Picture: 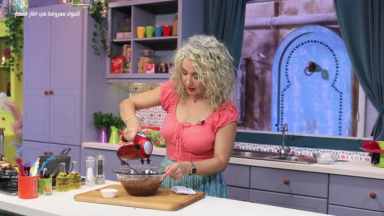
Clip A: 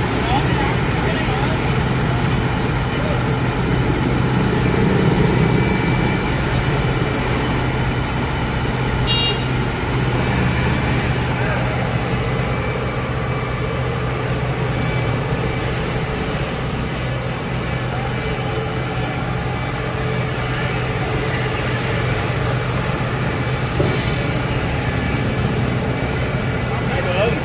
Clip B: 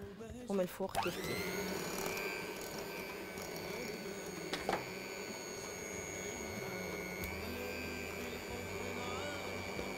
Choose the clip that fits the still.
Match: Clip B